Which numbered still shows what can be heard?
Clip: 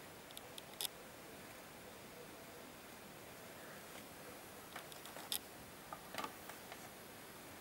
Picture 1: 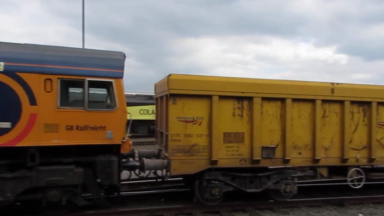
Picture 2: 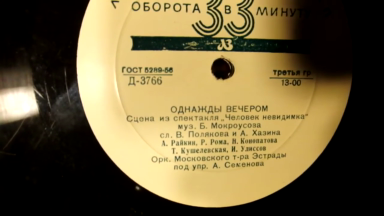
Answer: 2